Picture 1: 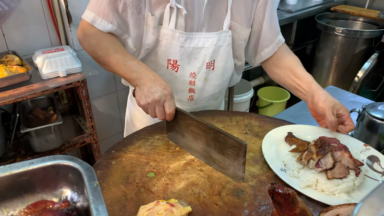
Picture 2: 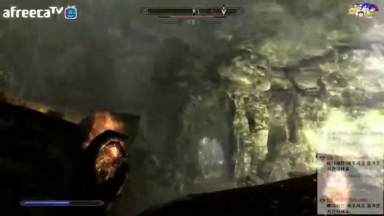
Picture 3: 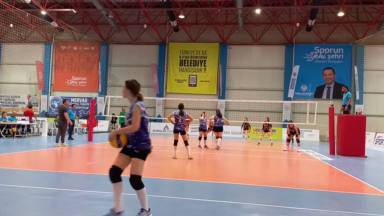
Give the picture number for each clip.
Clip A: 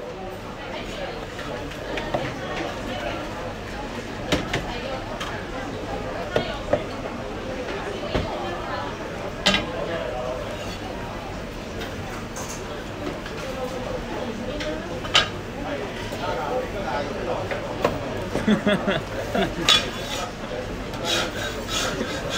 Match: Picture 1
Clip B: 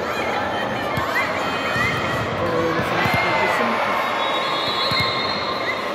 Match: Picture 3